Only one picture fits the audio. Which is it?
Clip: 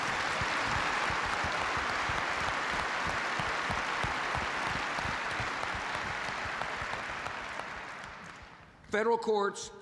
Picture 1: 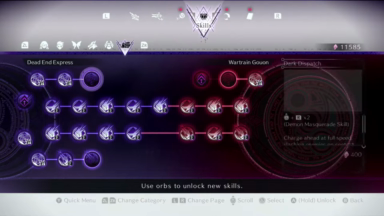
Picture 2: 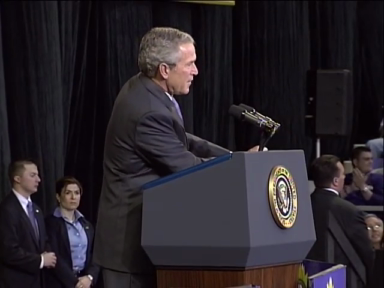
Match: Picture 2